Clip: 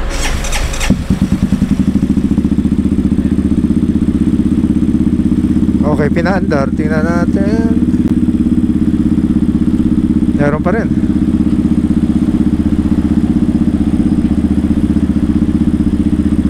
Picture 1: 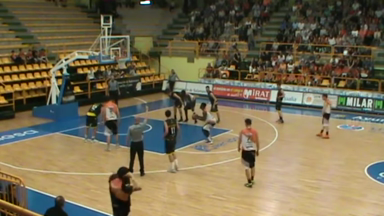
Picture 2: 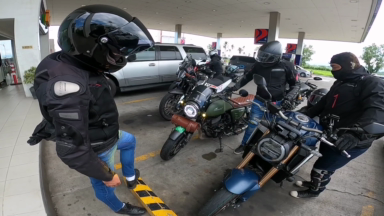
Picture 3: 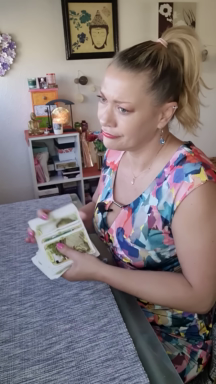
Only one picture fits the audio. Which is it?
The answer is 2